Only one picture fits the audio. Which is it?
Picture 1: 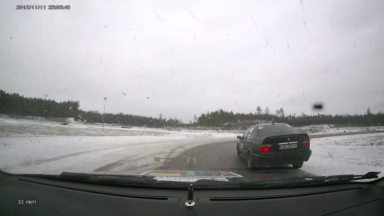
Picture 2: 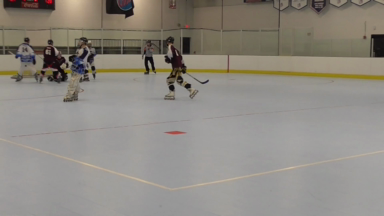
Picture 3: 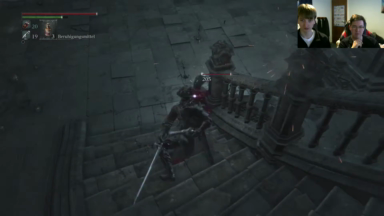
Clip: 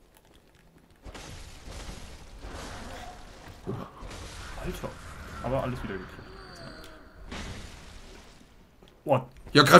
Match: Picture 3